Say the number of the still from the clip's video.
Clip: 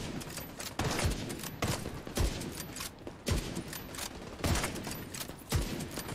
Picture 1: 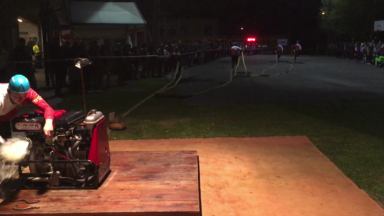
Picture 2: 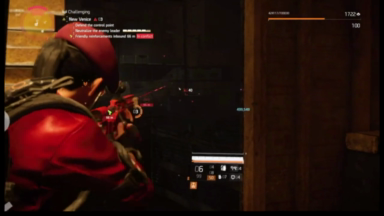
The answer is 2